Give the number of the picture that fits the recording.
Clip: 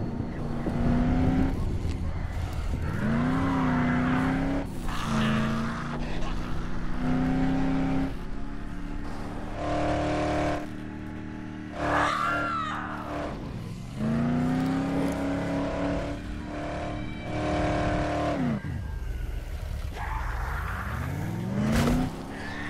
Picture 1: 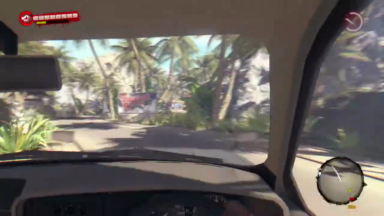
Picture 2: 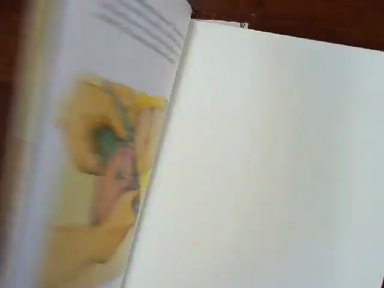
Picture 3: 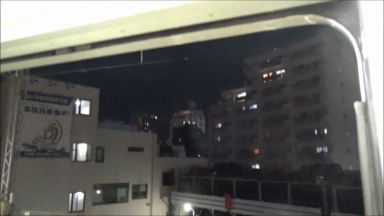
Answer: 1